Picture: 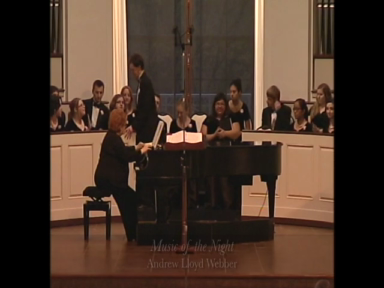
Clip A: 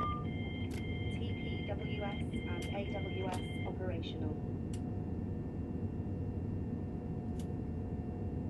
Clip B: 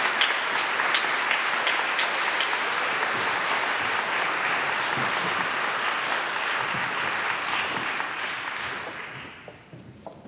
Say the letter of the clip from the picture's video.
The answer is B